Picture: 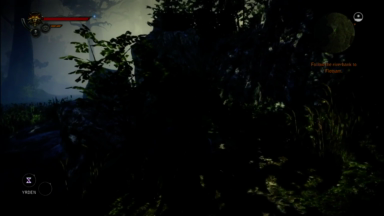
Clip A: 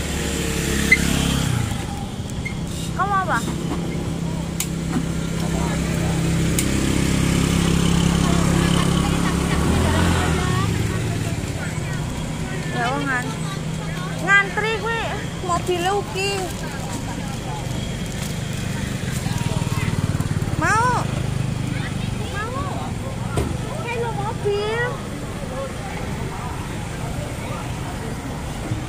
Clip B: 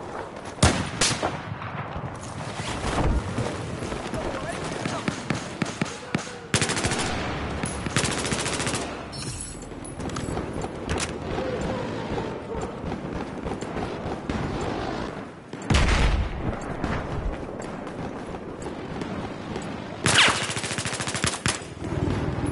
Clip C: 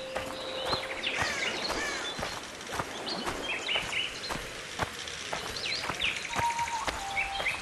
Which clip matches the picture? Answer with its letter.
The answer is C